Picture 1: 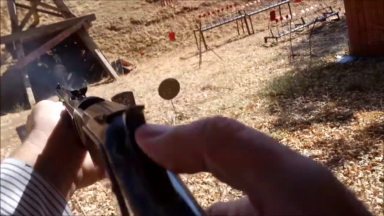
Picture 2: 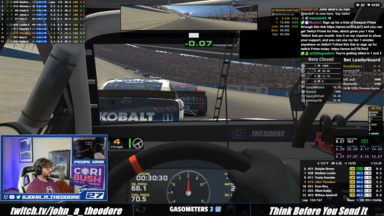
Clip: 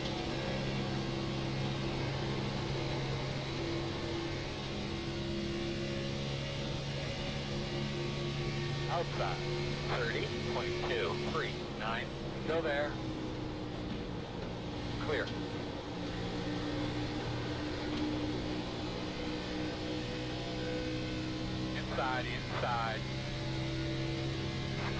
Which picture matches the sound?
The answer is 2